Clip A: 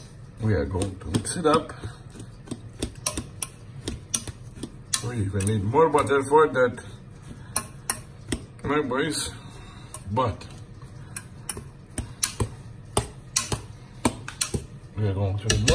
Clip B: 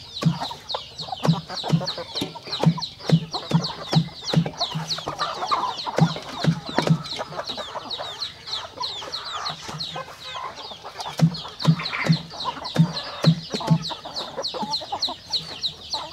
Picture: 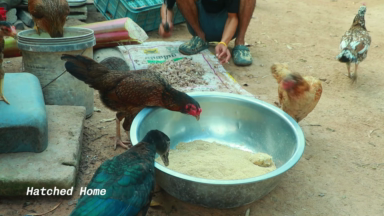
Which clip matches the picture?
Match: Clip B